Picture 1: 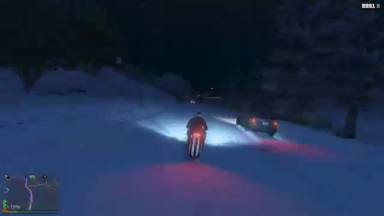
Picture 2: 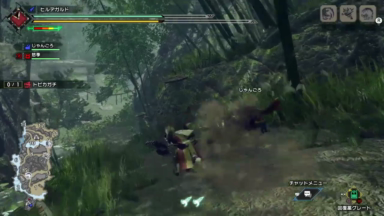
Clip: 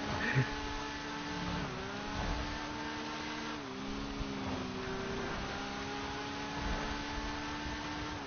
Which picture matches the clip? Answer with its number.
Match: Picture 1